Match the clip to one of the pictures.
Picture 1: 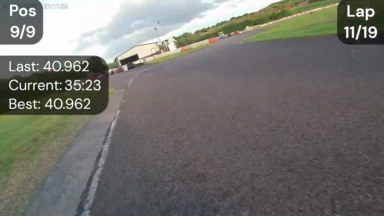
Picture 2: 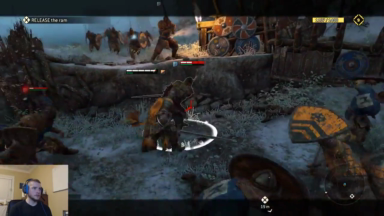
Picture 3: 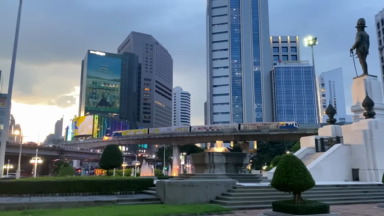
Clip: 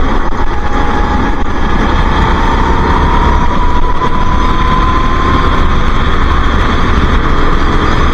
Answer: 1